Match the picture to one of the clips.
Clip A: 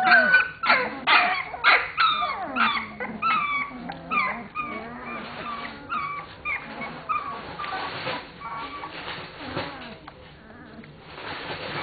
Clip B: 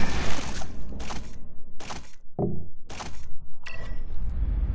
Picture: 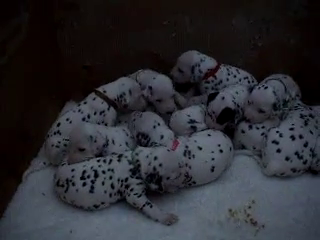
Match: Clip A